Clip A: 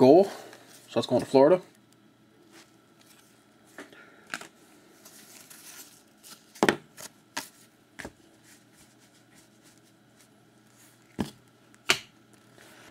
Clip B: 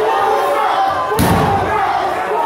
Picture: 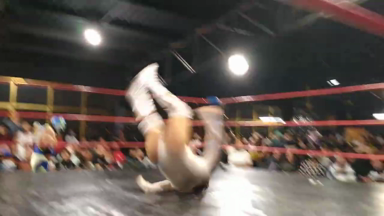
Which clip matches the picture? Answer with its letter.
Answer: B